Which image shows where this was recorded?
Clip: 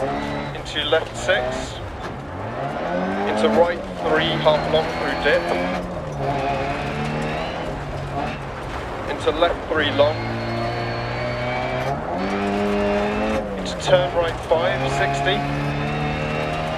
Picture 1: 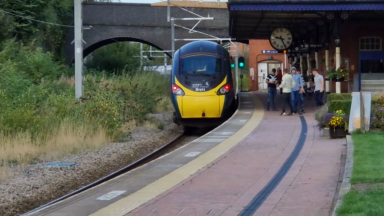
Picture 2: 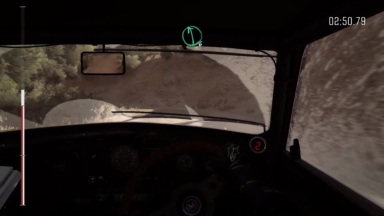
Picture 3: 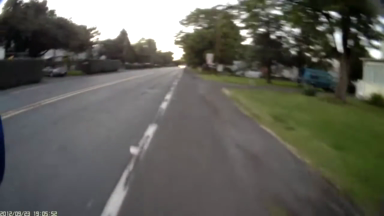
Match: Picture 2